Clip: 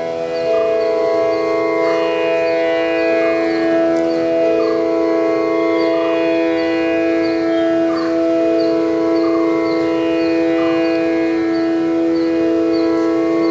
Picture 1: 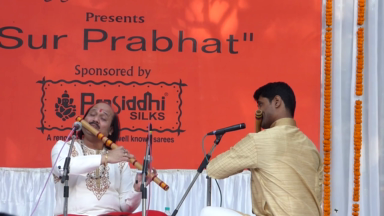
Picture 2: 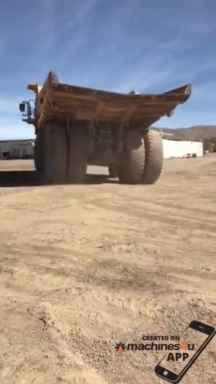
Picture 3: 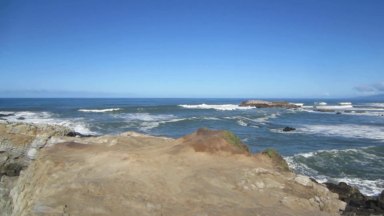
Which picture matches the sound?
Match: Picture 1